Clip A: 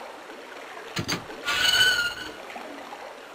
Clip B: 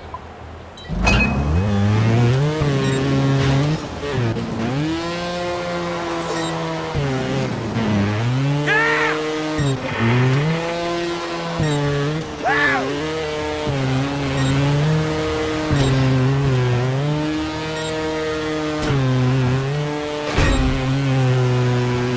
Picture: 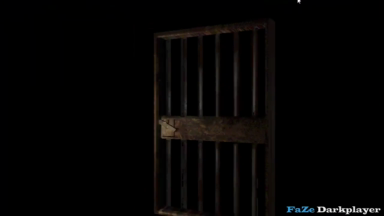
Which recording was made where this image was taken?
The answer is A